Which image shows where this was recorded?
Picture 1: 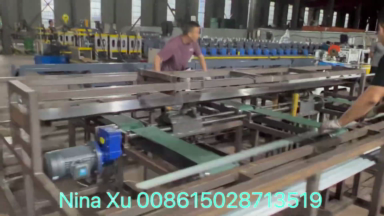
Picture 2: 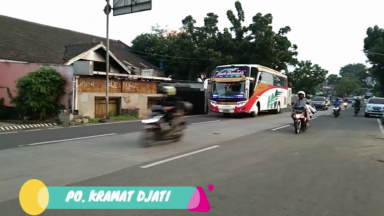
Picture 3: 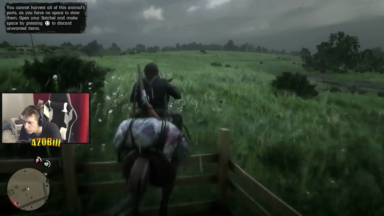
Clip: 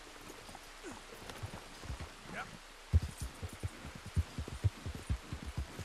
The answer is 3